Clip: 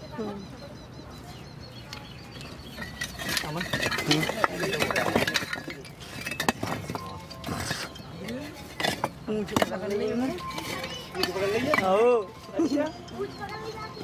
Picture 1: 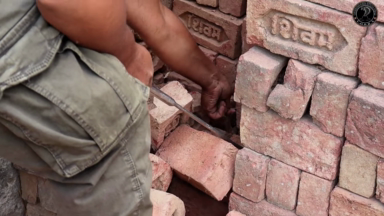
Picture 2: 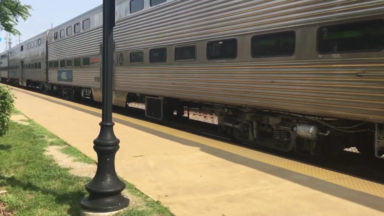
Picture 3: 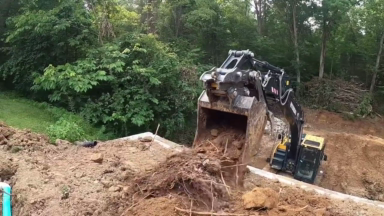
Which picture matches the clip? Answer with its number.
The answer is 1